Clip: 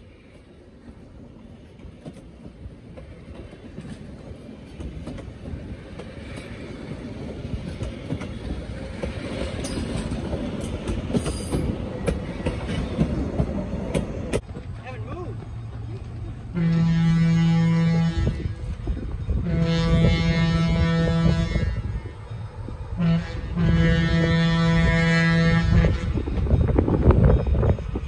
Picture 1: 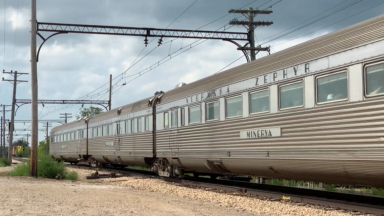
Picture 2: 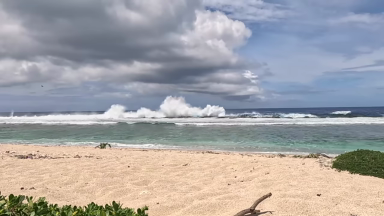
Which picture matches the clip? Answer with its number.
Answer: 1